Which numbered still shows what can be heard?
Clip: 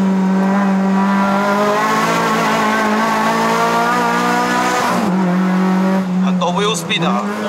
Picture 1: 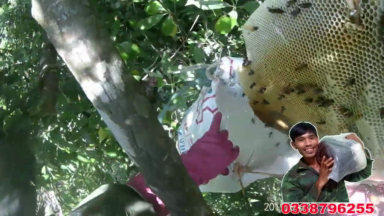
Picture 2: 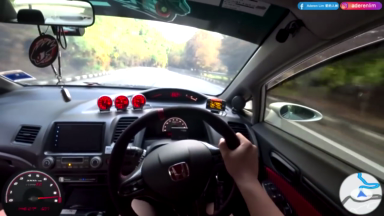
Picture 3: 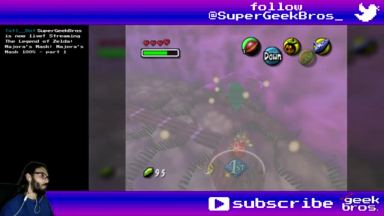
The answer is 2